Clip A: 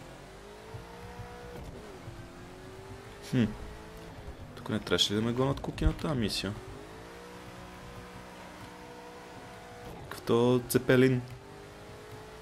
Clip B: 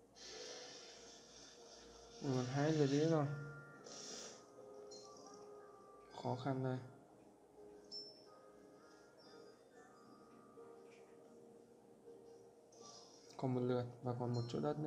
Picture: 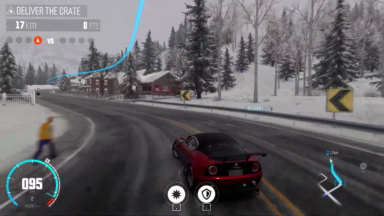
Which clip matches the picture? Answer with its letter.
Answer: A